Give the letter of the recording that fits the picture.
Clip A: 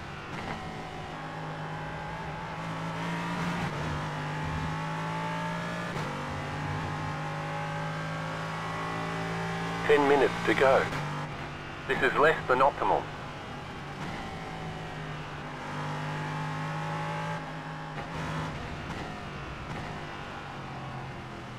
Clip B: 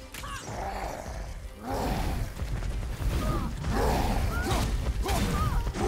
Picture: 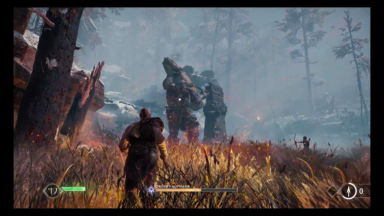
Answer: B